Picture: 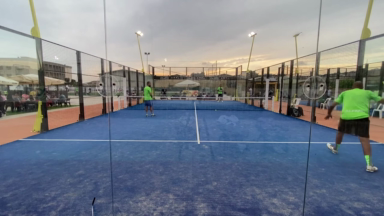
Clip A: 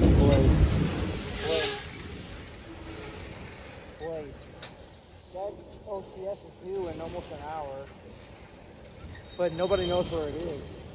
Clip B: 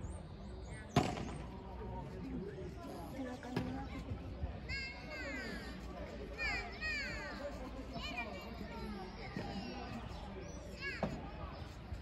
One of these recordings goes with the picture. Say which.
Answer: B